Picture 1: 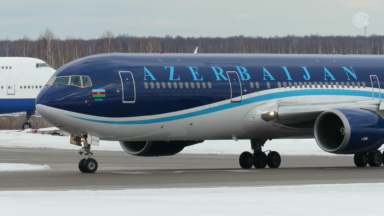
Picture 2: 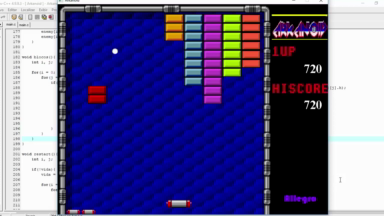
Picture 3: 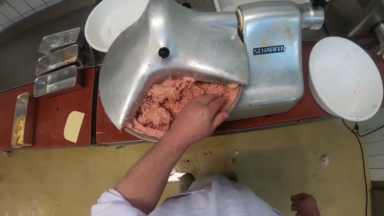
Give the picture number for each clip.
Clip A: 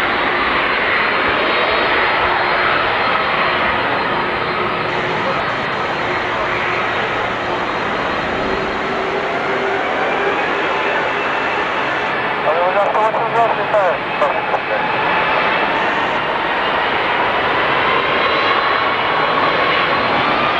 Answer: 1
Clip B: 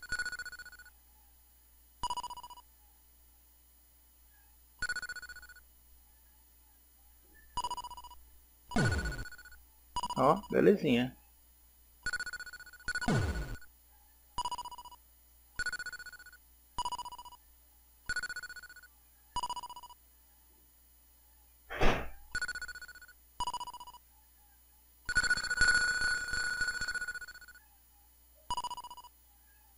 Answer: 2